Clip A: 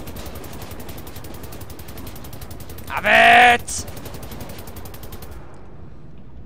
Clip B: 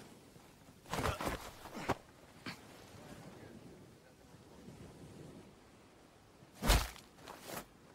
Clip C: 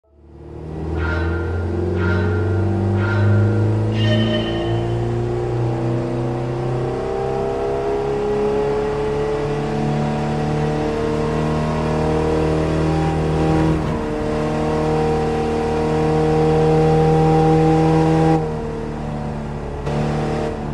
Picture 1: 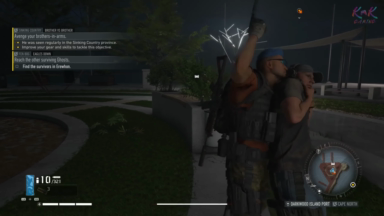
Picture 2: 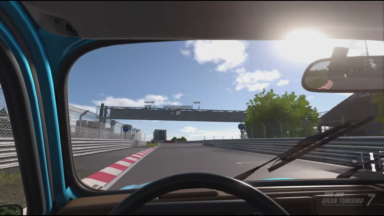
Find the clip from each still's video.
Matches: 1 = B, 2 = C